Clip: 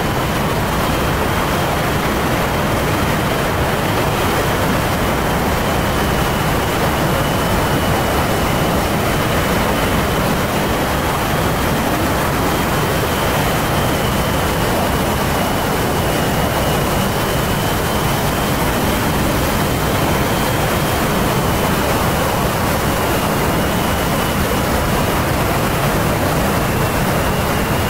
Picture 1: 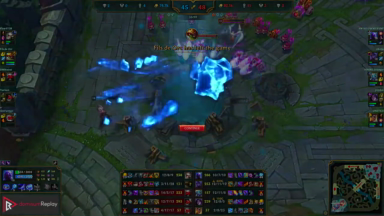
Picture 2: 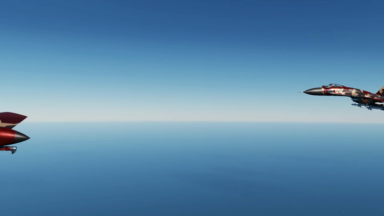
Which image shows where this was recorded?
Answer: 2